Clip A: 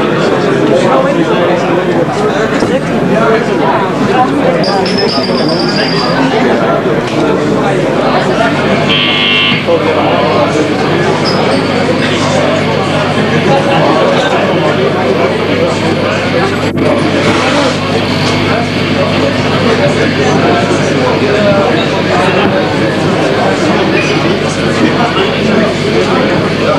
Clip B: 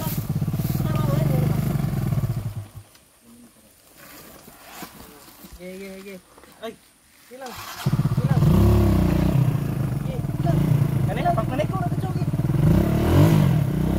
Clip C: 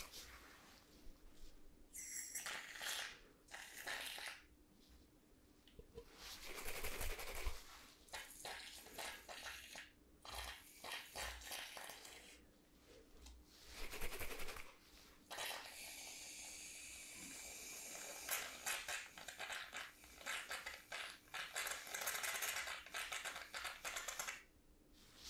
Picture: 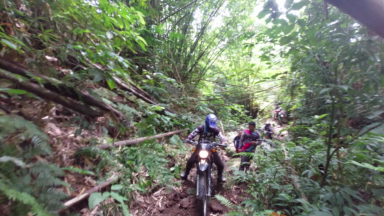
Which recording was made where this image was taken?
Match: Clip B